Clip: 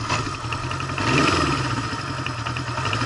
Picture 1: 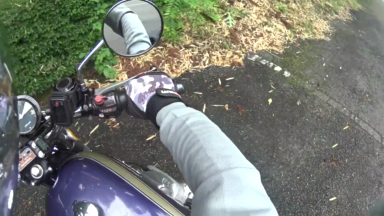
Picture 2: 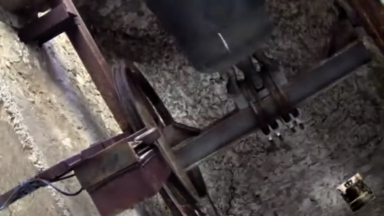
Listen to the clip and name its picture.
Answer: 1